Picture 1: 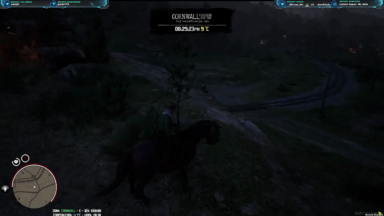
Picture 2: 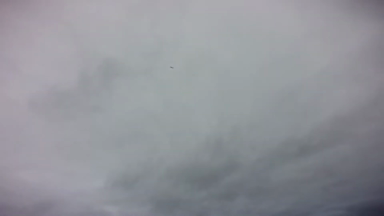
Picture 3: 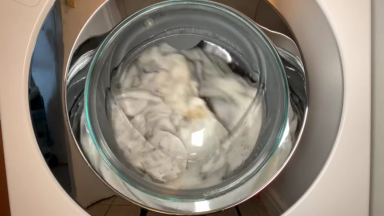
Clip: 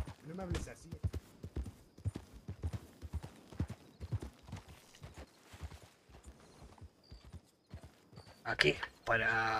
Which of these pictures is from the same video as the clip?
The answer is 1